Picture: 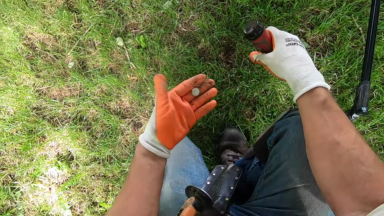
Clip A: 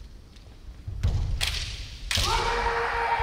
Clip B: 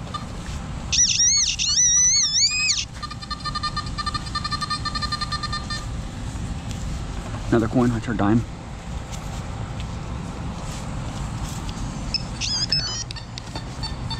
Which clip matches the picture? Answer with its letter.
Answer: B